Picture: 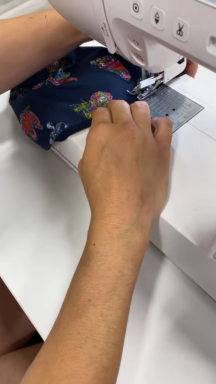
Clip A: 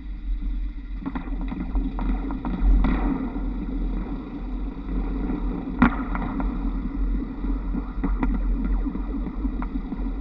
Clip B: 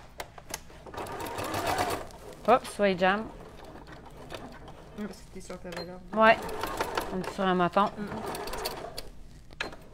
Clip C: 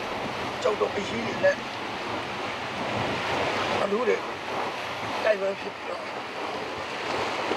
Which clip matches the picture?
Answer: B